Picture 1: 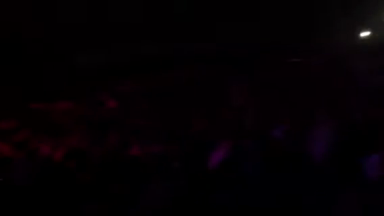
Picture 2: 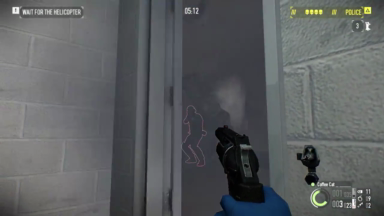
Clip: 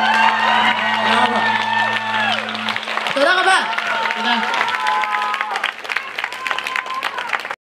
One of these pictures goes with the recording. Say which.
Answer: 1